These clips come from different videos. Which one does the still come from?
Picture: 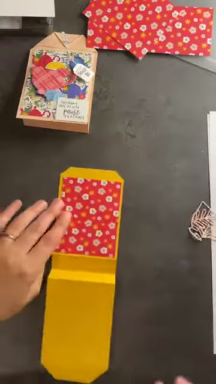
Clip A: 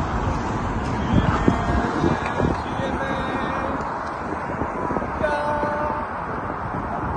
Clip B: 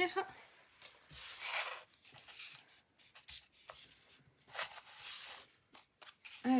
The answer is B